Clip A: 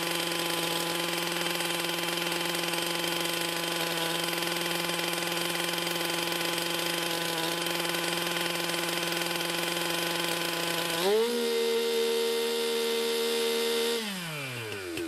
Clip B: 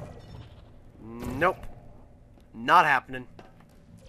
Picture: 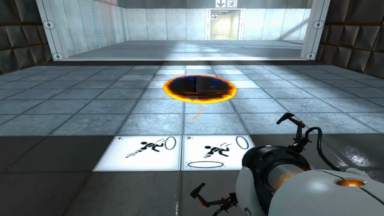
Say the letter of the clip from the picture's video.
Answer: B